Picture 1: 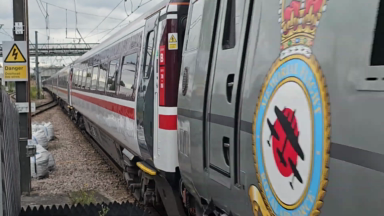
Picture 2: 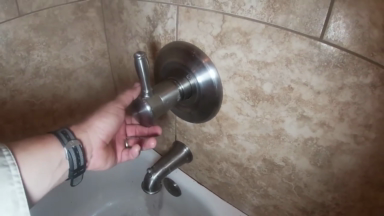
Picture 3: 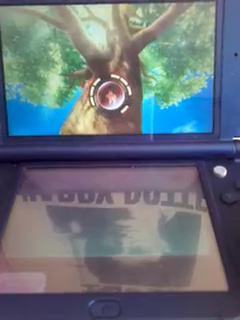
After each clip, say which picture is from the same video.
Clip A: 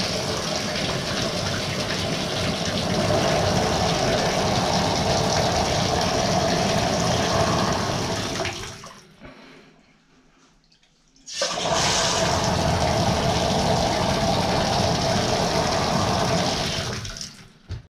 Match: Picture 2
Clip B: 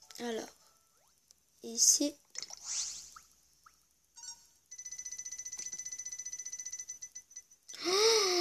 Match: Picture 3